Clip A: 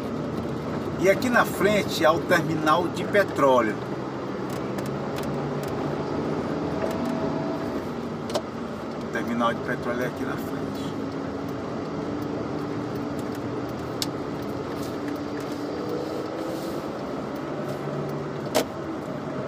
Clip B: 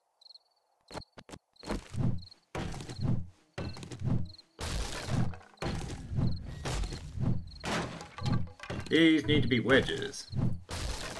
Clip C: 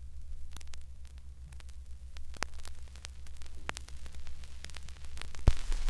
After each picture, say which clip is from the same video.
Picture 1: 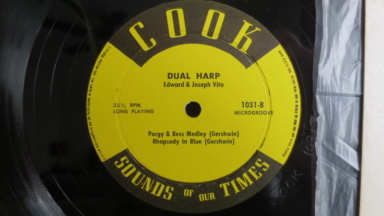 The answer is C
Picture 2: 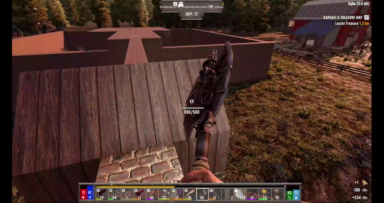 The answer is B